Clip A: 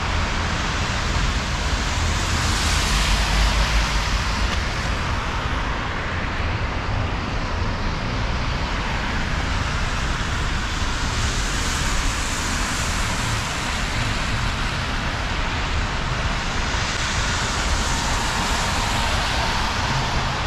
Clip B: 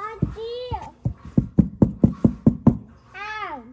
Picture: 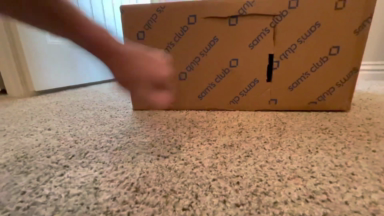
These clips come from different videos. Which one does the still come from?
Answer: B